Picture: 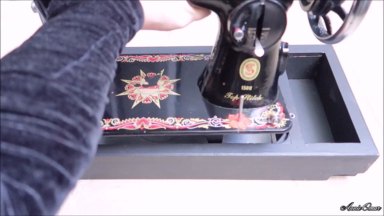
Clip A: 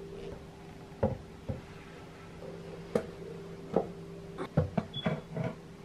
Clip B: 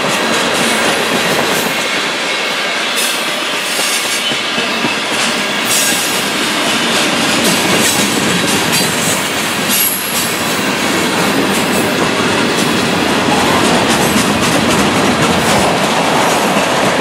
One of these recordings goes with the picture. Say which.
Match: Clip A